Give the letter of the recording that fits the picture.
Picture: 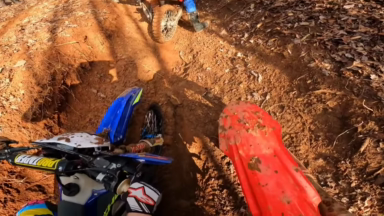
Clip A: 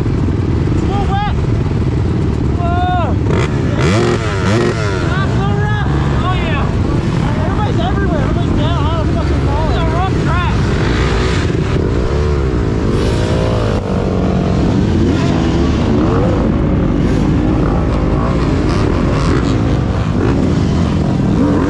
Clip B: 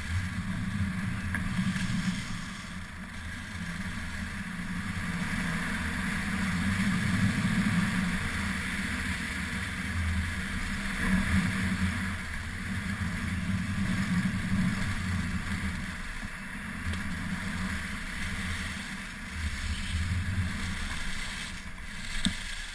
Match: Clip A